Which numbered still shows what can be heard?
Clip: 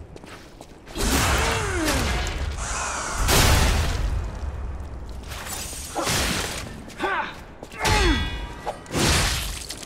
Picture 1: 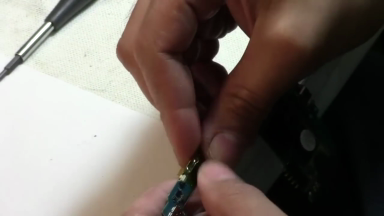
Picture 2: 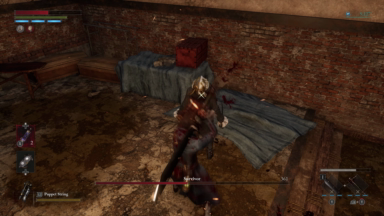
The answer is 2